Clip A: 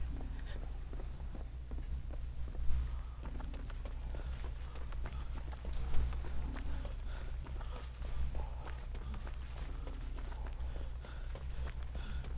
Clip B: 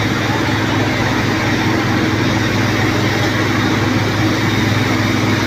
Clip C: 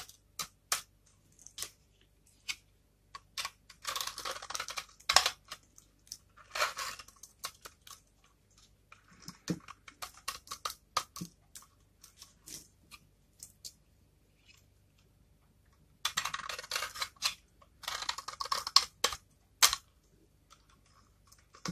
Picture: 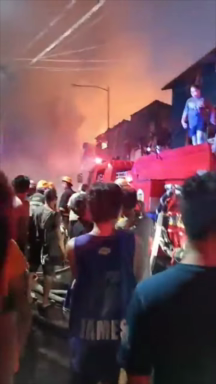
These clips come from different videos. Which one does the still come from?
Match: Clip B